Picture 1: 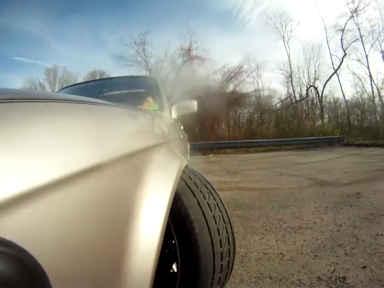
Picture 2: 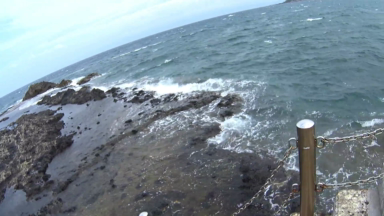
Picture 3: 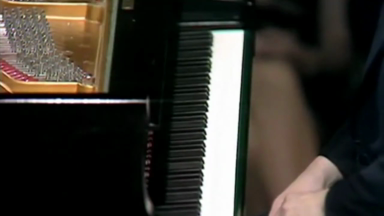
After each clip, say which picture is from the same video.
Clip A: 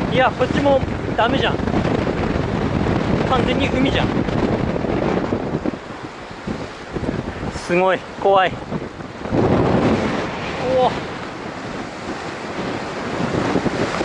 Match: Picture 2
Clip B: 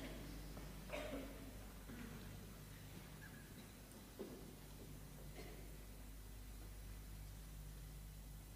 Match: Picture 3